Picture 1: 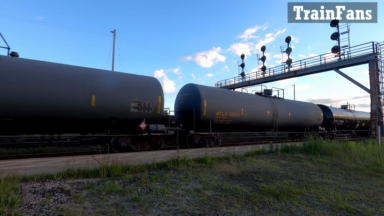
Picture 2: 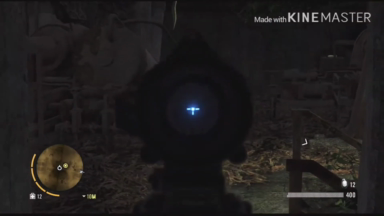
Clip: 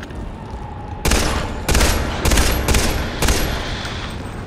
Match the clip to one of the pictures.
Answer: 2